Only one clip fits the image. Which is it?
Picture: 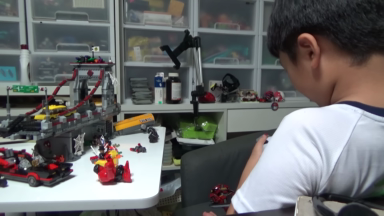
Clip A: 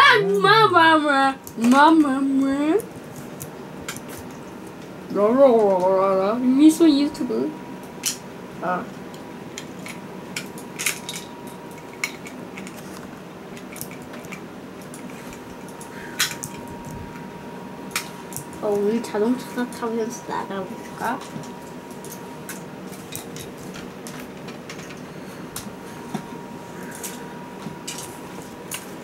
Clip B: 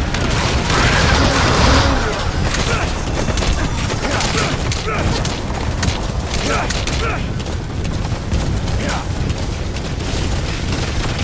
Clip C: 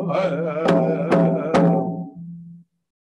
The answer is A